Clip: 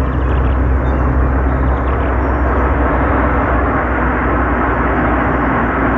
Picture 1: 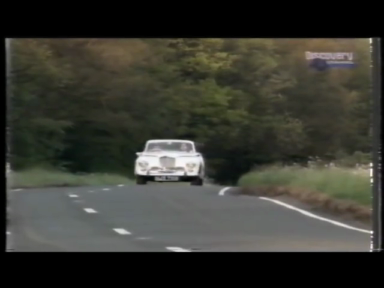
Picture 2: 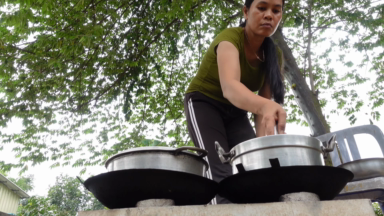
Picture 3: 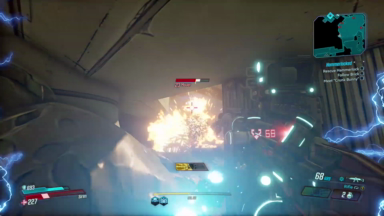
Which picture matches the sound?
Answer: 1